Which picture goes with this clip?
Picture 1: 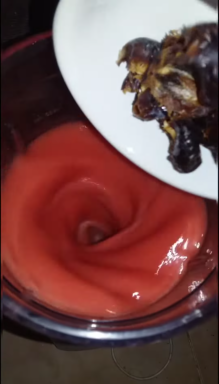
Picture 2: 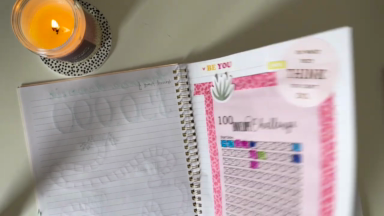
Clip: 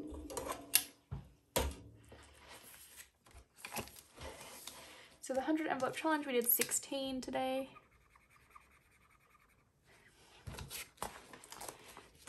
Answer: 2